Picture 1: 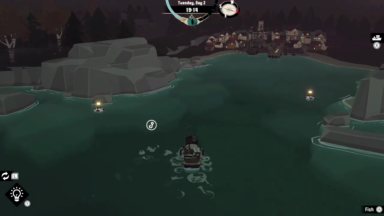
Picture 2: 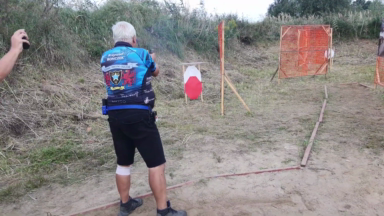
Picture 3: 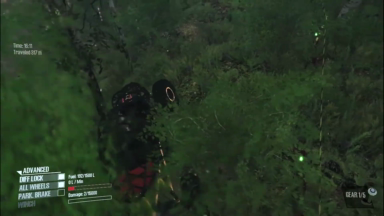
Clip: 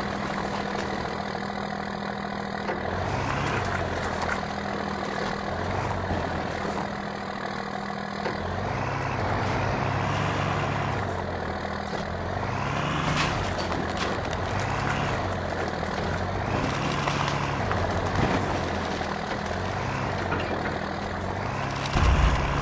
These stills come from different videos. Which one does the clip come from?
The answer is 3